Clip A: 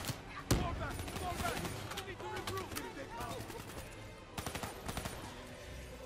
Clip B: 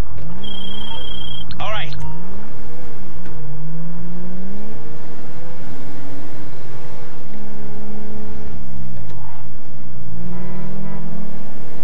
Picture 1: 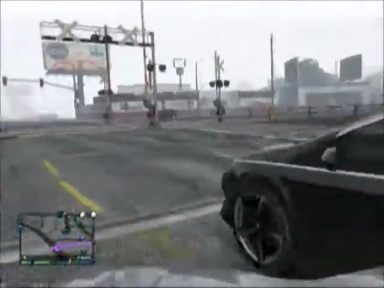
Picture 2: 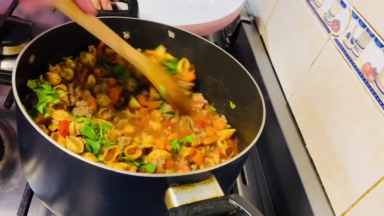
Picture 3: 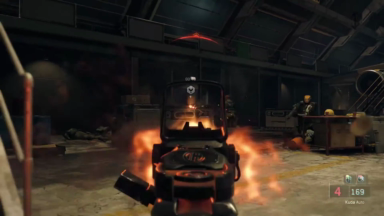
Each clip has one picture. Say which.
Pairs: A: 3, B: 1